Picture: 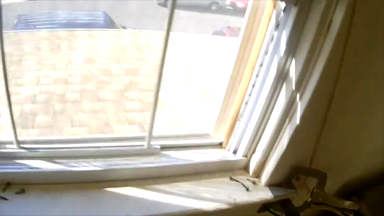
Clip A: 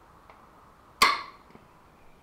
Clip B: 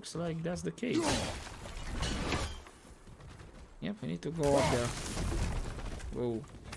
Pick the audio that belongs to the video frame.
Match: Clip A